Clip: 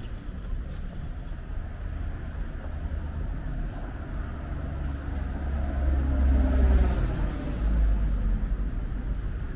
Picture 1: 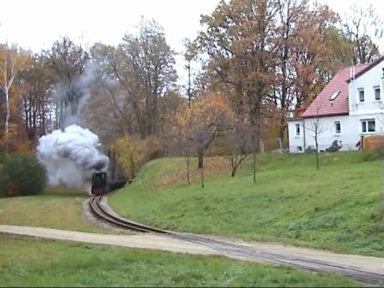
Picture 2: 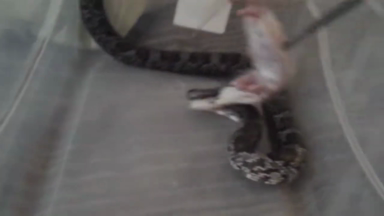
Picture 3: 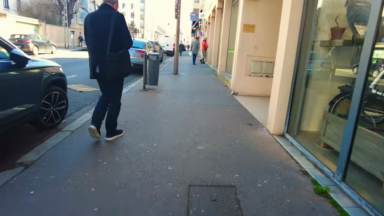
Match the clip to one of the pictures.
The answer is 3